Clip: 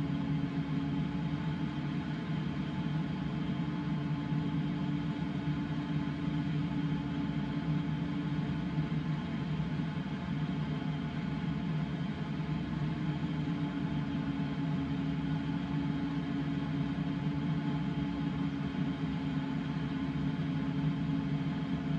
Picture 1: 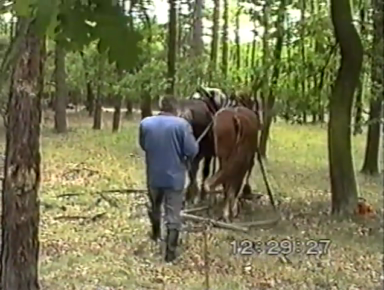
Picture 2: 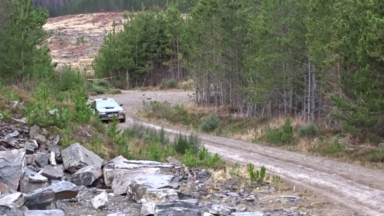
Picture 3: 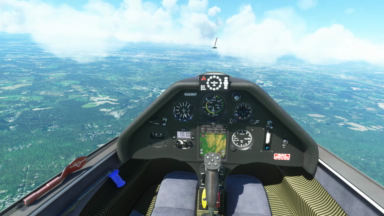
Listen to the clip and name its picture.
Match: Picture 3